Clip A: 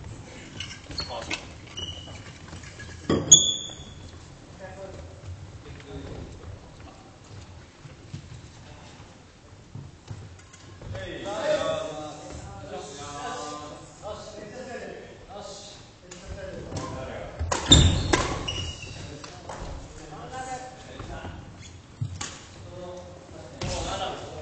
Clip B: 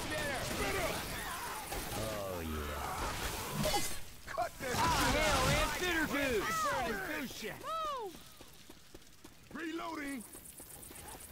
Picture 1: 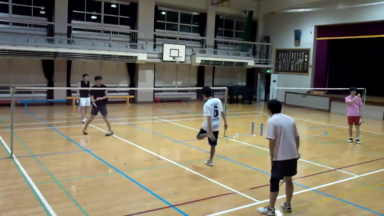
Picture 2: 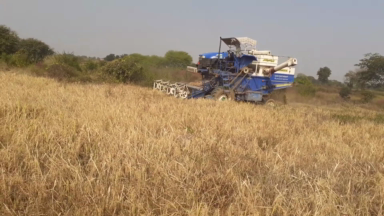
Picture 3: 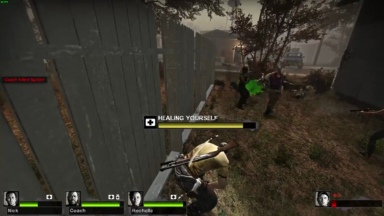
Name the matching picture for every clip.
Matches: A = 1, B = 3